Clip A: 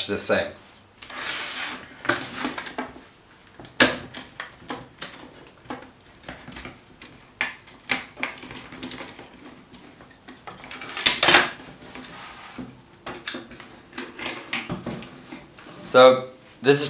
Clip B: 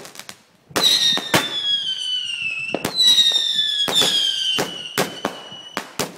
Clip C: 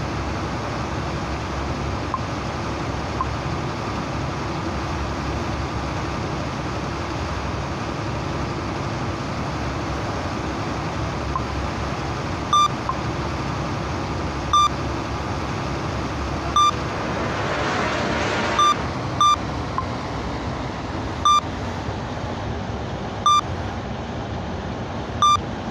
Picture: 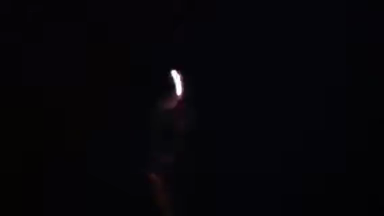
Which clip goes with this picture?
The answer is B